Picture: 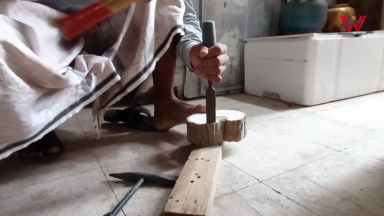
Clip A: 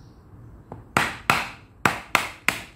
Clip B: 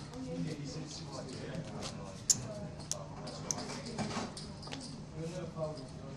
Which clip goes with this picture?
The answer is A